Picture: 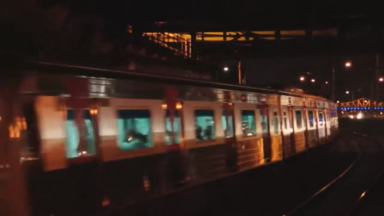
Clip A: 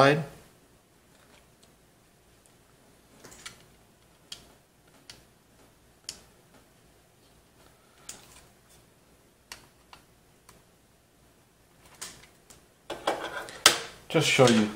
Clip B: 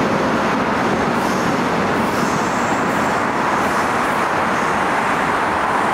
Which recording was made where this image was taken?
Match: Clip B